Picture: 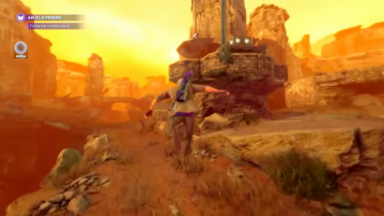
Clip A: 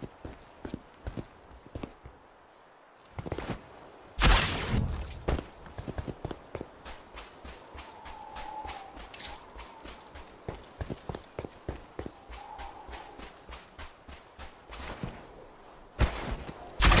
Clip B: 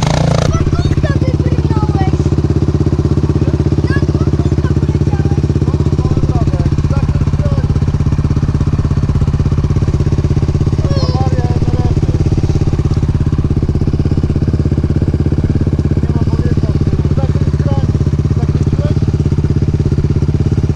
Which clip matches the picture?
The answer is A